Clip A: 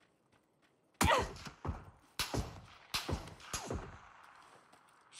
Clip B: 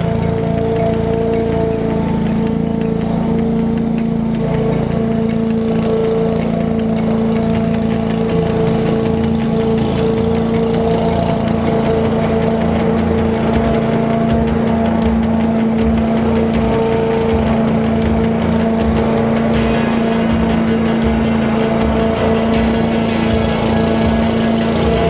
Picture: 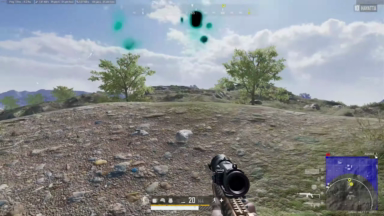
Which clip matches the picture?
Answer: A